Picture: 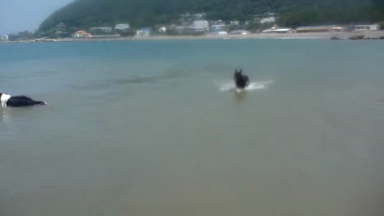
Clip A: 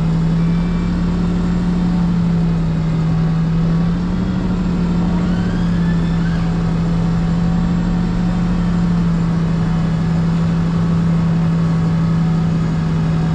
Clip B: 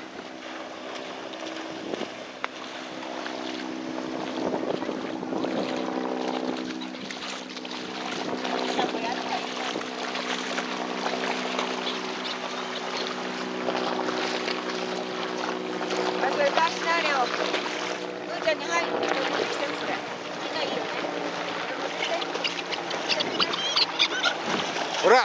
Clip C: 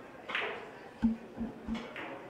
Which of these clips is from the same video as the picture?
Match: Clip B